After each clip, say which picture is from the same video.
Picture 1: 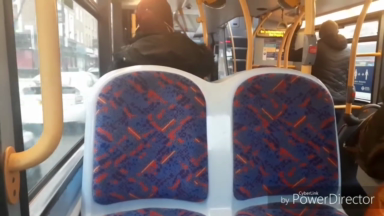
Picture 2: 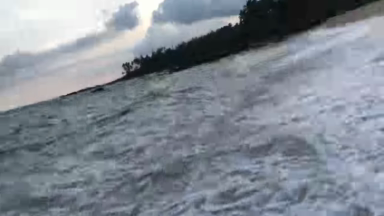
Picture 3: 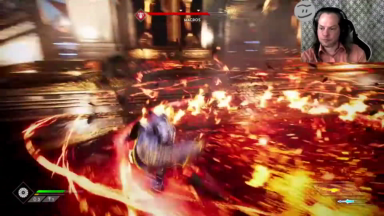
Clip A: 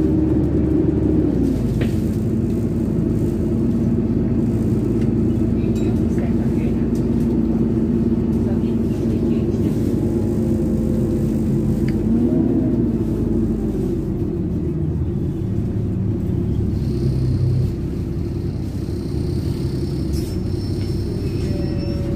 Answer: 1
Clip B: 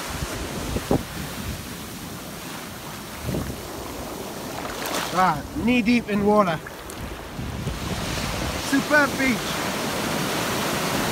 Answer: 2